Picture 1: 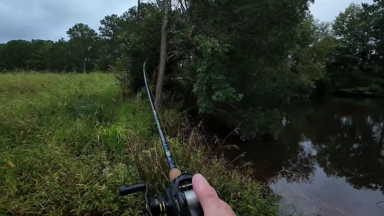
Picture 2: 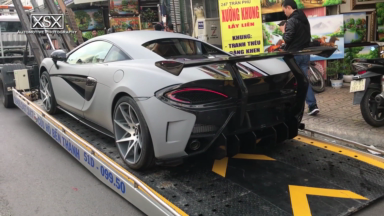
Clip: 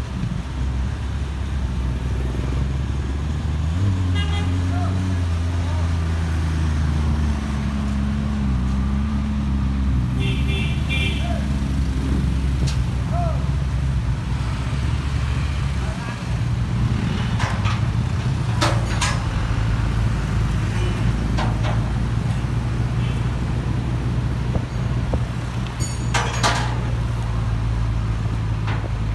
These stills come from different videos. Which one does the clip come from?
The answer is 2